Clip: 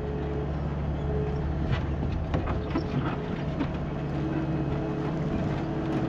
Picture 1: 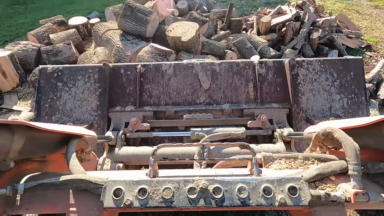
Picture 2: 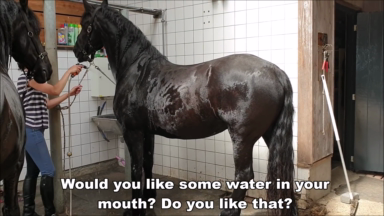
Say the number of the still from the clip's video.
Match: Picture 1